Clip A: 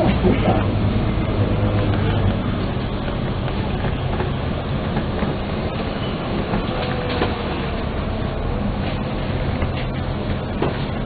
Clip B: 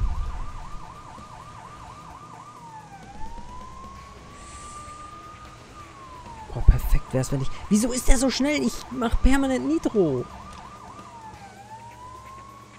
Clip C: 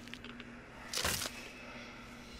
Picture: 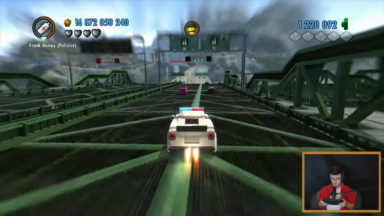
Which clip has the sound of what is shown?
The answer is B